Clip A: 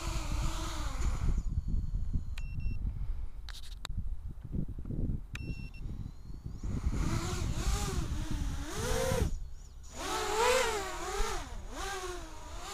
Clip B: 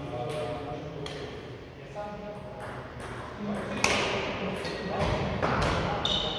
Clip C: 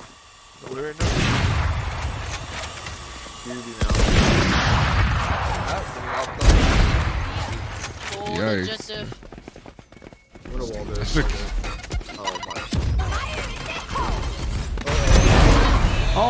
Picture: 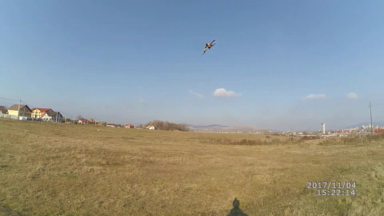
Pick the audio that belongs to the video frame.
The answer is A